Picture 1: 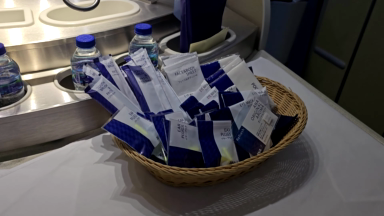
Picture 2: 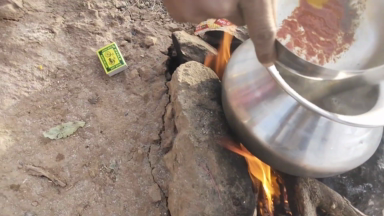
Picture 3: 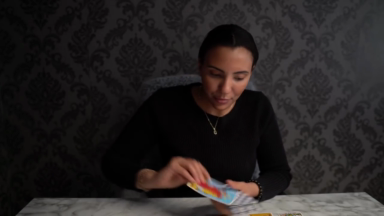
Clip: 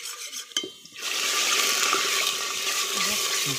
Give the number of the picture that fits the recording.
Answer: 2